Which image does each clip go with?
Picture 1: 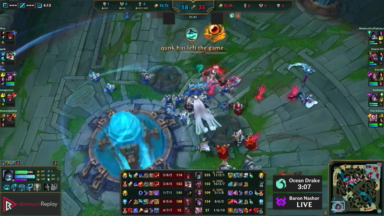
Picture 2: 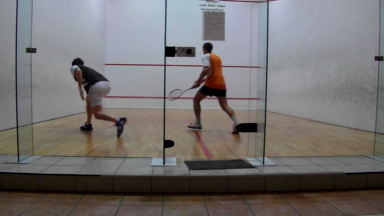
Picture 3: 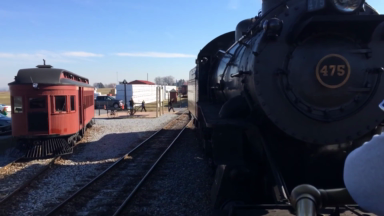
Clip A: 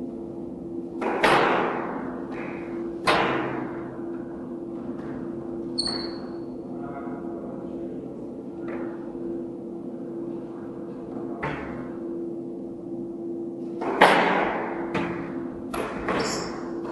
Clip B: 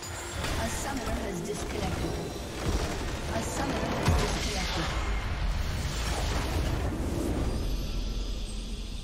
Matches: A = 2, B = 1